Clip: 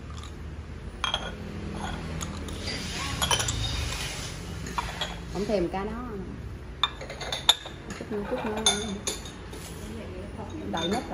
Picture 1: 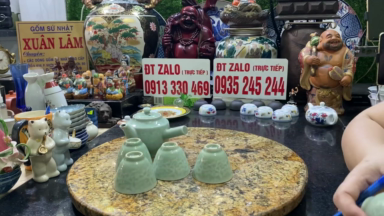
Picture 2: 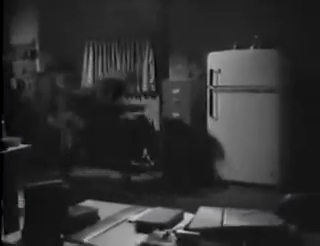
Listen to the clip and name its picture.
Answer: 1